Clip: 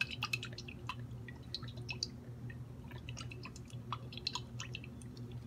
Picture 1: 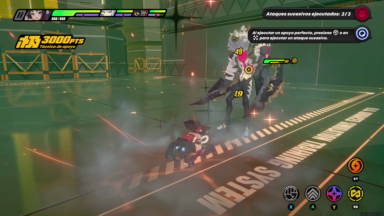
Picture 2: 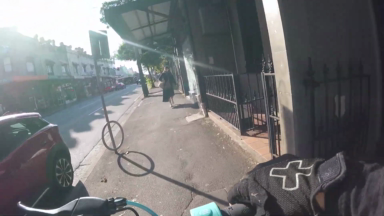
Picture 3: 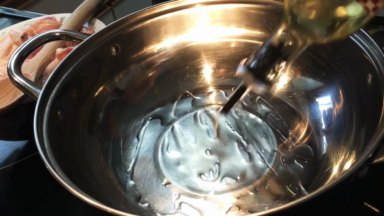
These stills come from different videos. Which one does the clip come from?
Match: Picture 3